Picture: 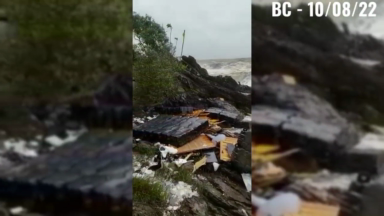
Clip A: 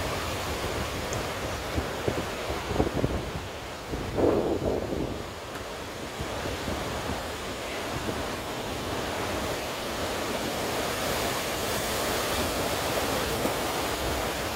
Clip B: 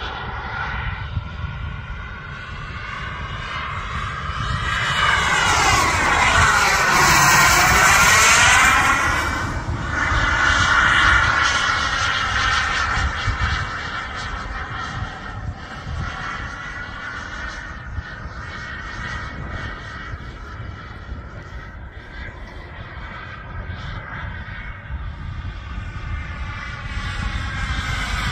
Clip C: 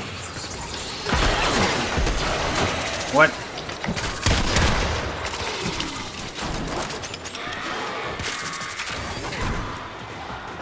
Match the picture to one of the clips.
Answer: A